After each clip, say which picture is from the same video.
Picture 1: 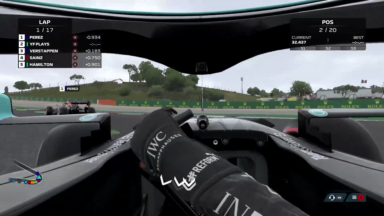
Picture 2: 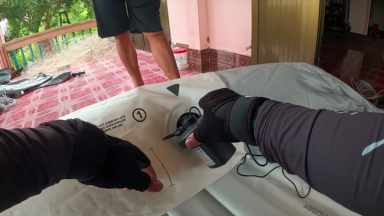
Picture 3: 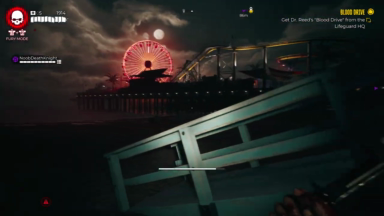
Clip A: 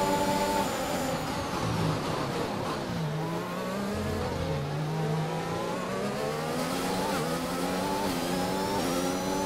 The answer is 1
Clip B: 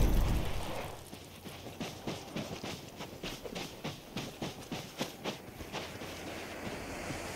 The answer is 3